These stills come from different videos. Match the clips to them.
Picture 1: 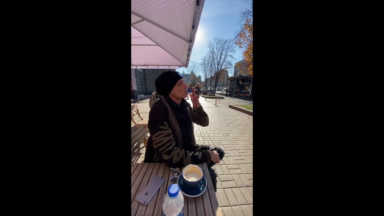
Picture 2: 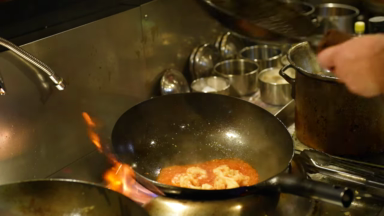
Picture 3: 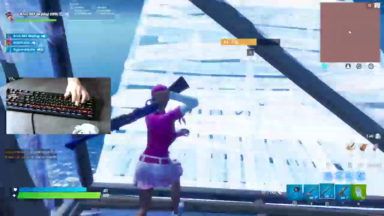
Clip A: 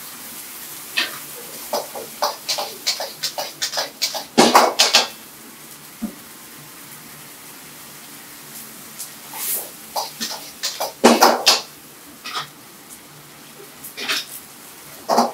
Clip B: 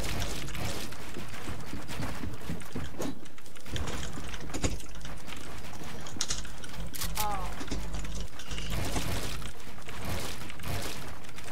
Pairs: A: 2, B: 3